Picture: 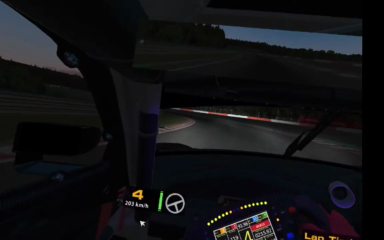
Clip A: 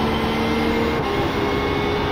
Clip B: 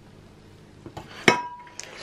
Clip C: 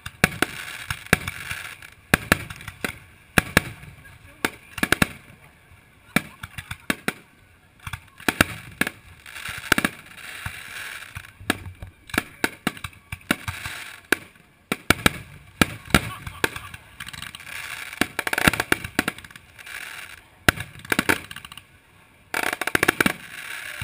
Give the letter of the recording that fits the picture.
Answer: A